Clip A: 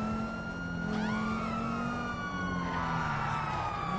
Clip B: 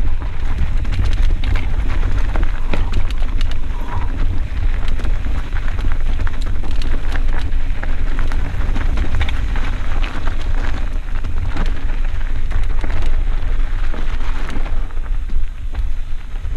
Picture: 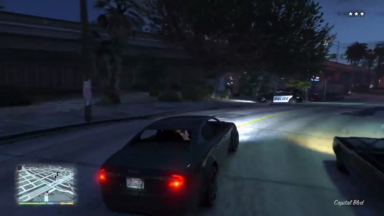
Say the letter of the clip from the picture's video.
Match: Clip A